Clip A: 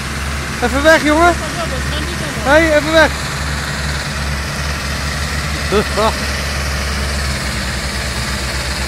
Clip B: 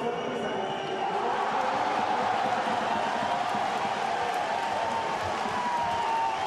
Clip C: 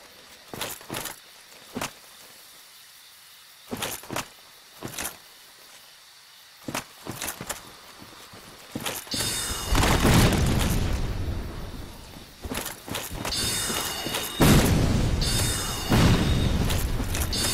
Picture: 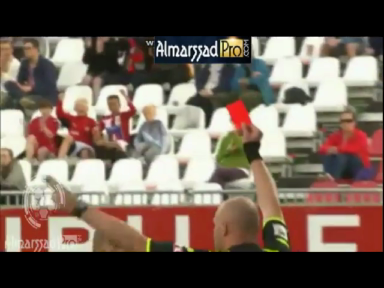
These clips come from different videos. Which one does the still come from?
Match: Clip B